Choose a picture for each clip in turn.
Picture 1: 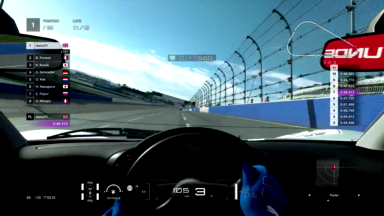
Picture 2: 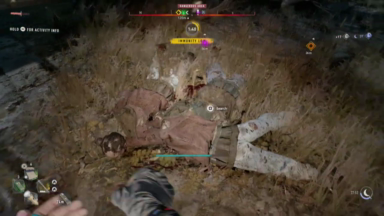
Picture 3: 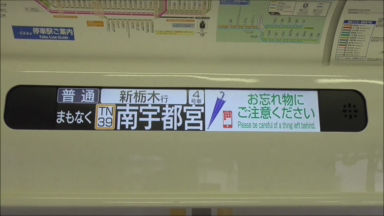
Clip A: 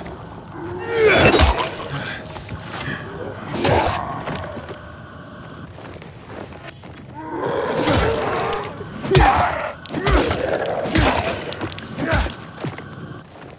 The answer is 2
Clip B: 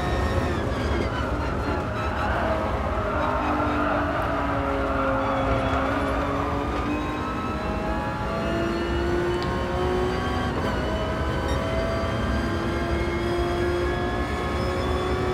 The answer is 1